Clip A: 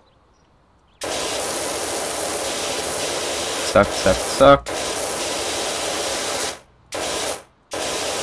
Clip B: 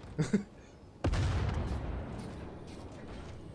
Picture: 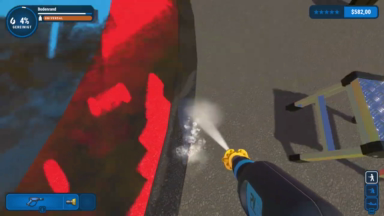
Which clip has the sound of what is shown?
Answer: A